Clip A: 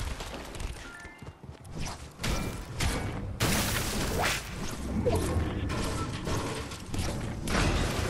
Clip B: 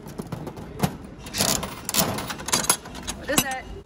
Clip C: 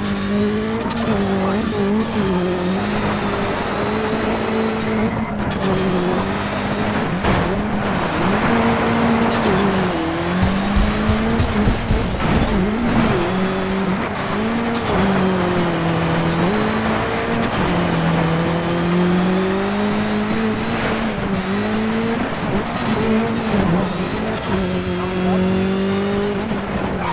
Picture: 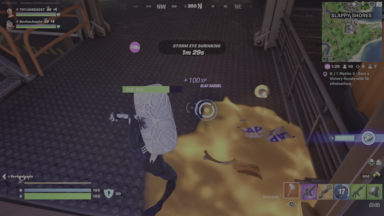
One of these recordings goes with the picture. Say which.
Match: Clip A